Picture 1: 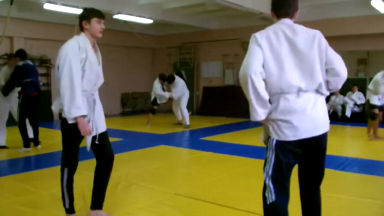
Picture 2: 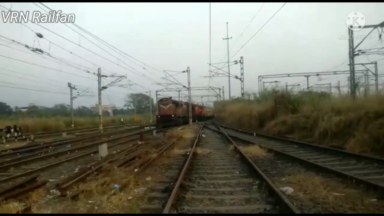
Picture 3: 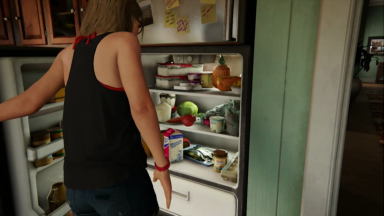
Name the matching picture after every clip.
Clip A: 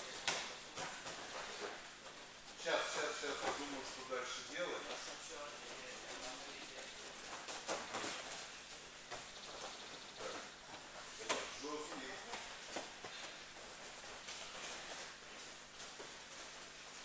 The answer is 1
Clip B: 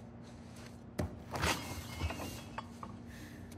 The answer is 3